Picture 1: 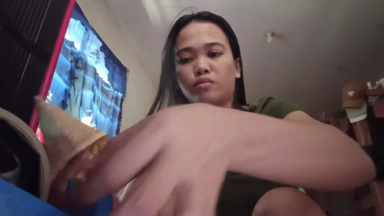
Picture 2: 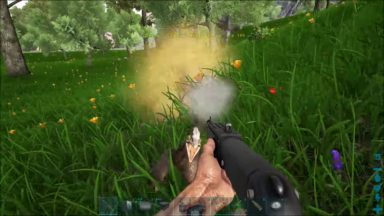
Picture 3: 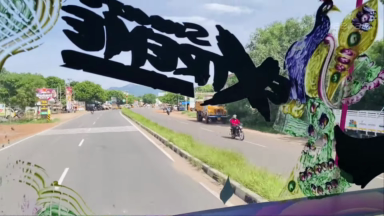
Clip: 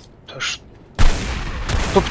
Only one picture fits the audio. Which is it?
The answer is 2